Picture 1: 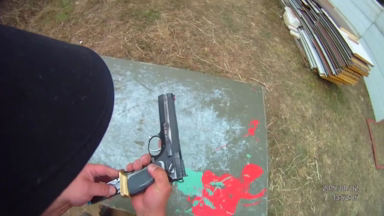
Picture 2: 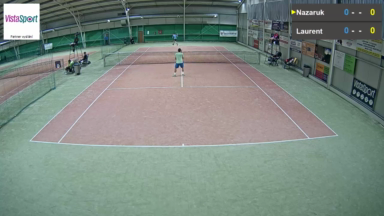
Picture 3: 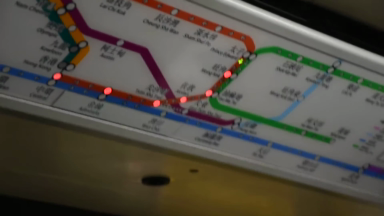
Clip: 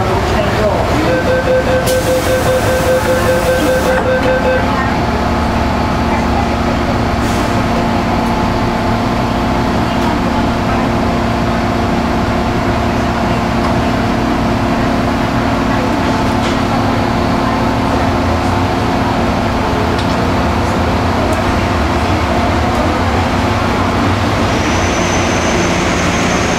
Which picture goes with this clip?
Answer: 3